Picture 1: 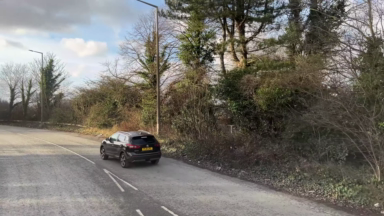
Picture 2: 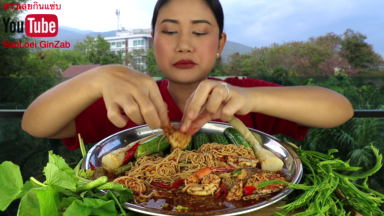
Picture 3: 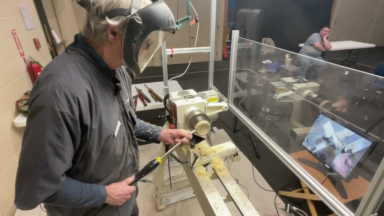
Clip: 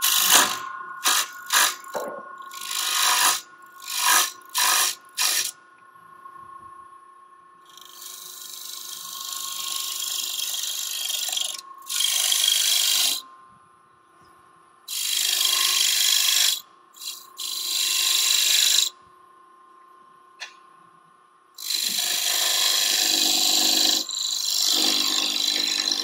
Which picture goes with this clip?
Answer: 3